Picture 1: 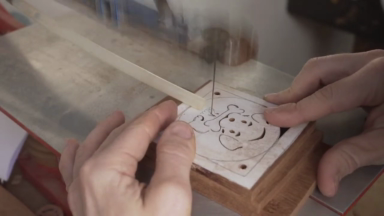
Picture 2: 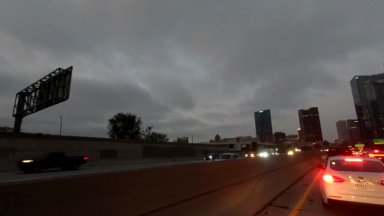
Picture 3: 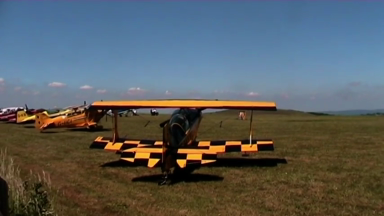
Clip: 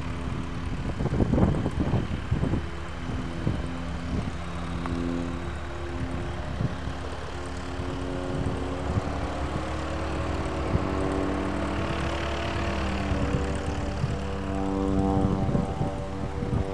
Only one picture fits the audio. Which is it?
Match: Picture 3